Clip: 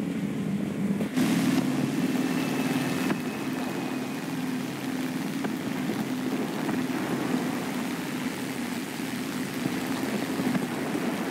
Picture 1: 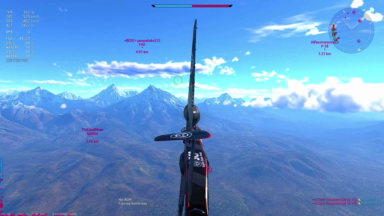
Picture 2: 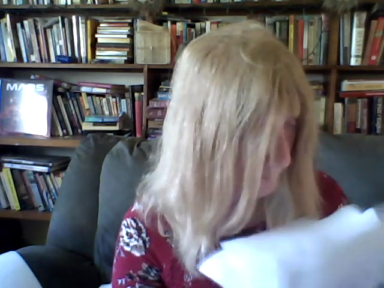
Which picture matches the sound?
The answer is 1